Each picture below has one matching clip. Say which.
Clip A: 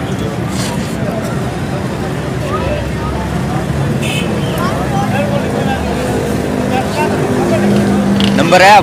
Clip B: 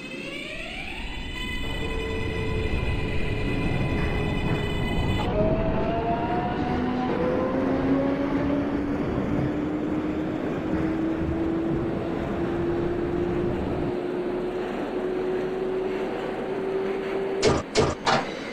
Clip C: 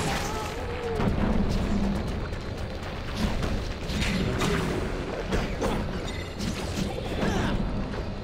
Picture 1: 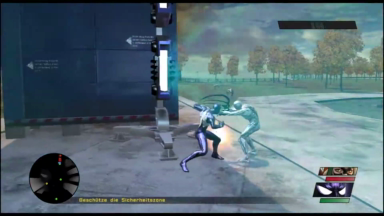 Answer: C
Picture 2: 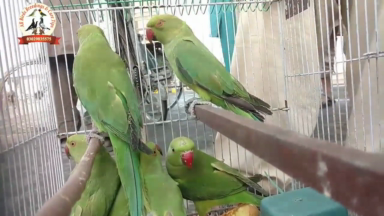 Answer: A